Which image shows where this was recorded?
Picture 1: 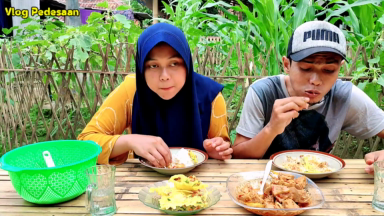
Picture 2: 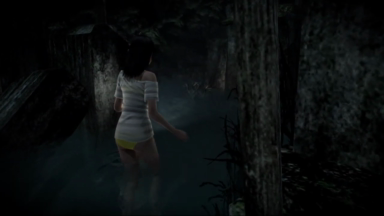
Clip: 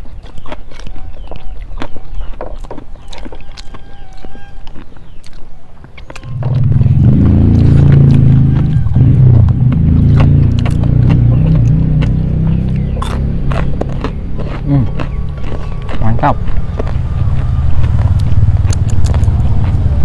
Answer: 1